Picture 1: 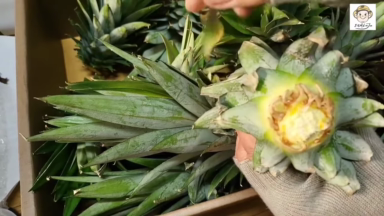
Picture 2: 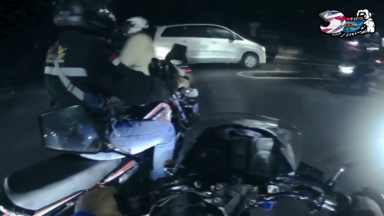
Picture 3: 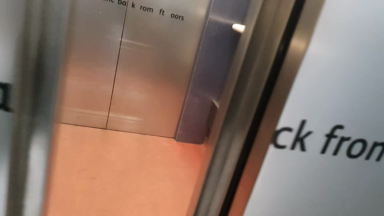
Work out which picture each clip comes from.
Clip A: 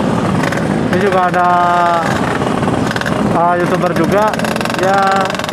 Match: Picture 2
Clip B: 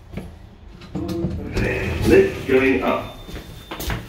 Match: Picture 3